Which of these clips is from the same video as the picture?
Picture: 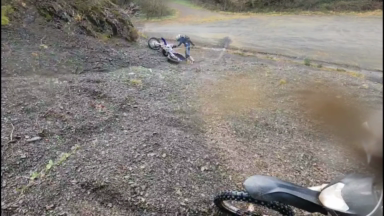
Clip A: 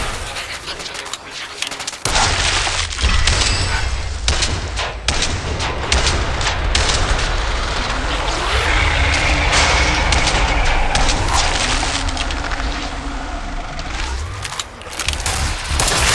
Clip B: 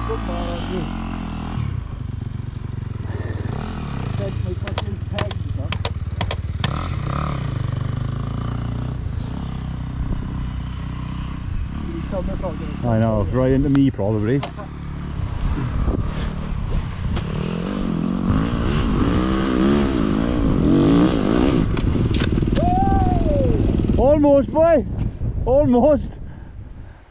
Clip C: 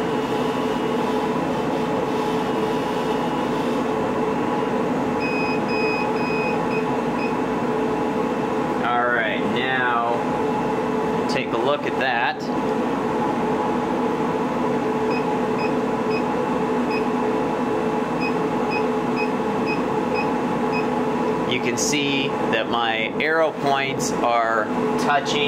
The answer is B